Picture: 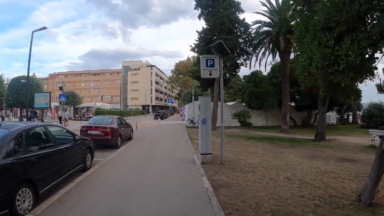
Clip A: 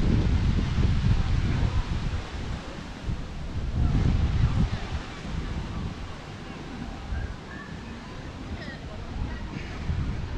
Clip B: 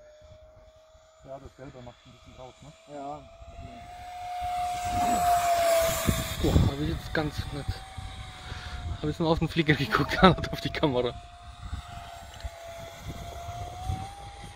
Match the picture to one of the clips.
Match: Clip A